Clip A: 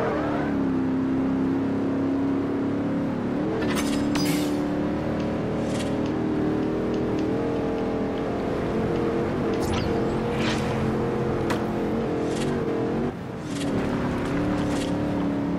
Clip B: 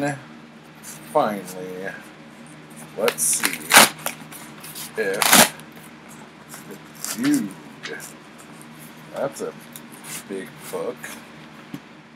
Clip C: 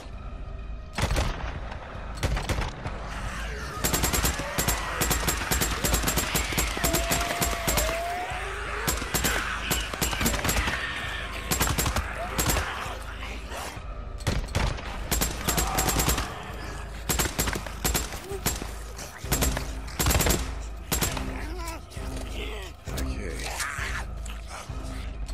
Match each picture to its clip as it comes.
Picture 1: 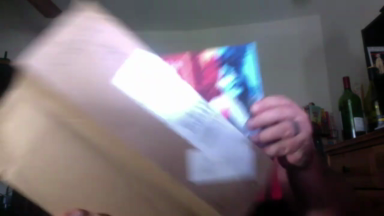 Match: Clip B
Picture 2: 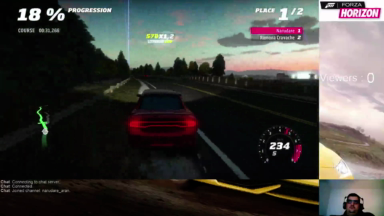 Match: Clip A